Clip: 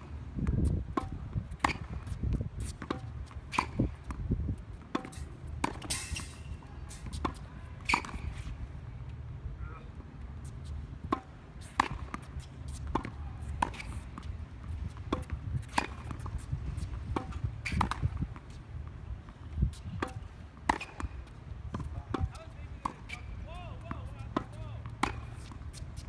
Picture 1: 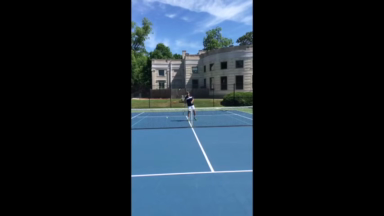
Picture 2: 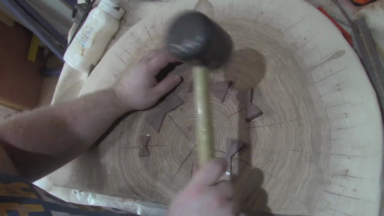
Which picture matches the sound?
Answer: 1